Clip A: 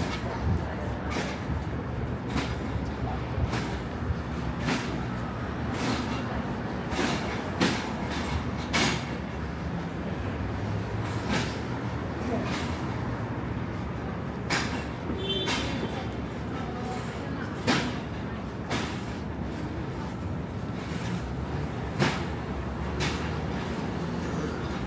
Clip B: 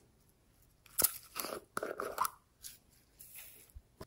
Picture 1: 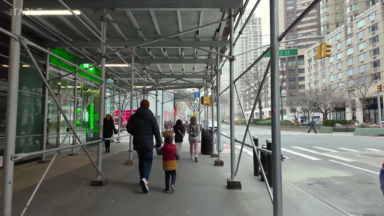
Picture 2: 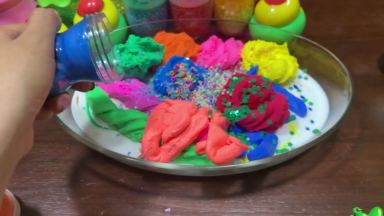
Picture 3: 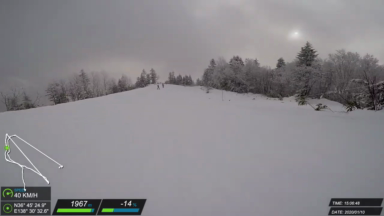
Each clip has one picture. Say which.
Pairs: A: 1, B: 2